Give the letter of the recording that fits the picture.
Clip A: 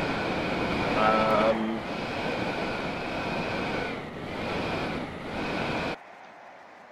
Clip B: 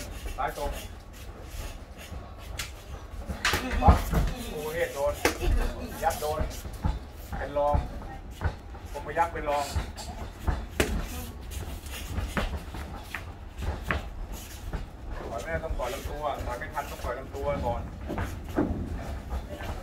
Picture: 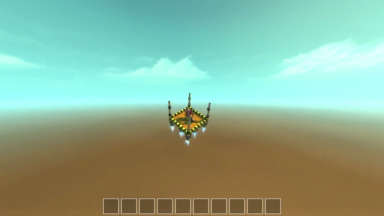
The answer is A